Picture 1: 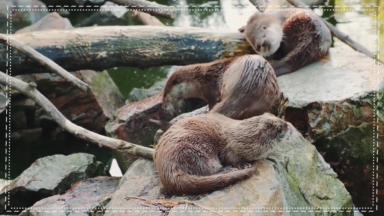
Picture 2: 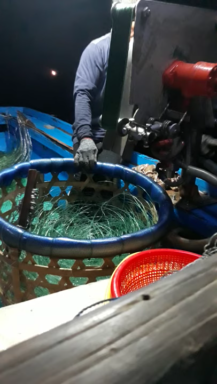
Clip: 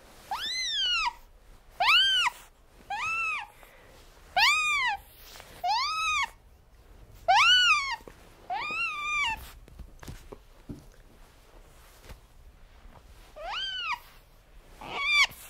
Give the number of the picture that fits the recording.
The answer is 1